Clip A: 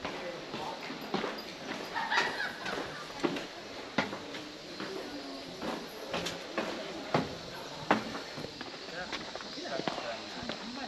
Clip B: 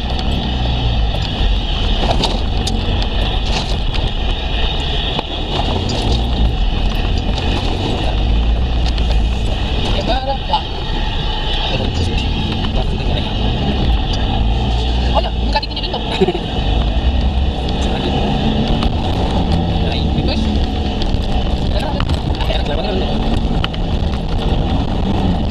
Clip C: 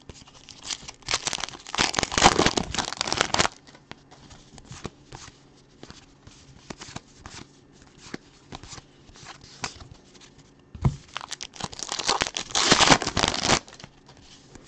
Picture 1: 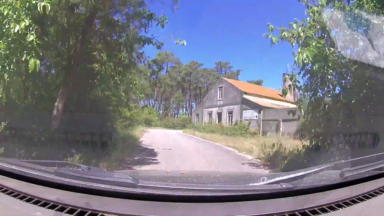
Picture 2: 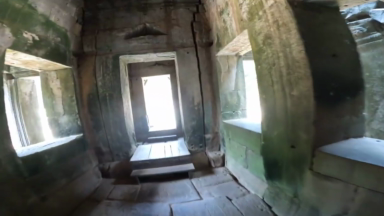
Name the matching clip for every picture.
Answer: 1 B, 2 A